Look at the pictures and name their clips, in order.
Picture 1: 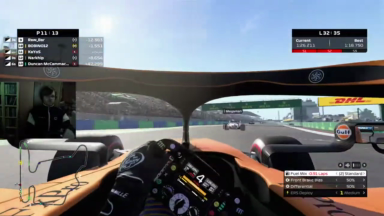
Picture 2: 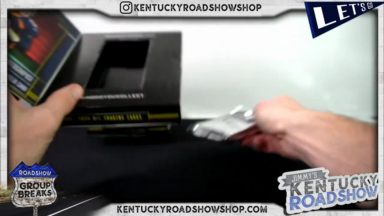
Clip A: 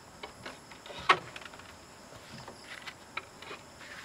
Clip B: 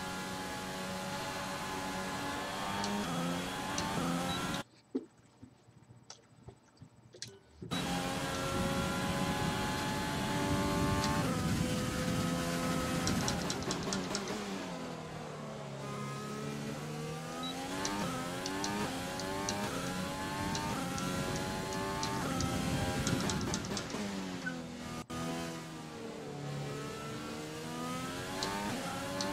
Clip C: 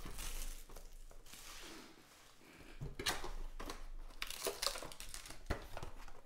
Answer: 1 B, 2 C